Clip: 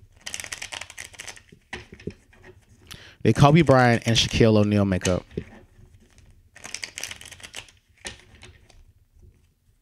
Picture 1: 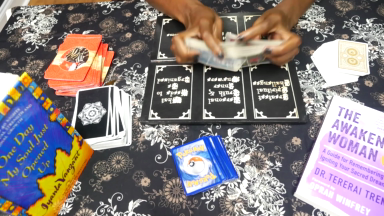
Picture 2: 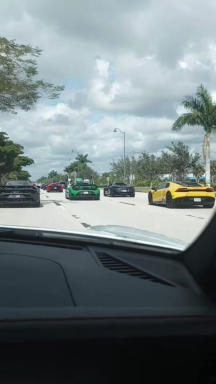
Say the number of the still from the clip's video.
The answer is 1